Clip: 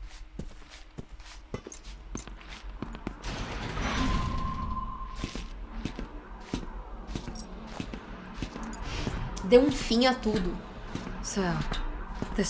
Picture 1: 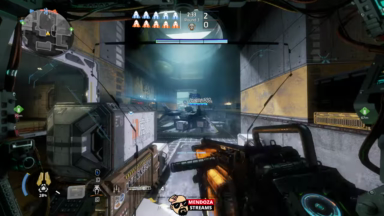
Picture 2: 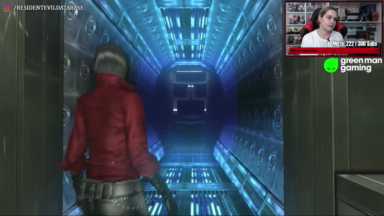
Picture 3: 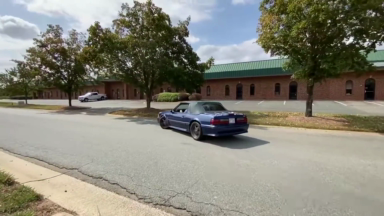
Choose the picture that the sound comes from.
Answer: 2